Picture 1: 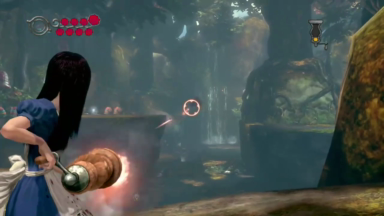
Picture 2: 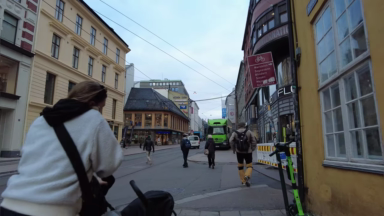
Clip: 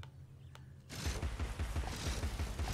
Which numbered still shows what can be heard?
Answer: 1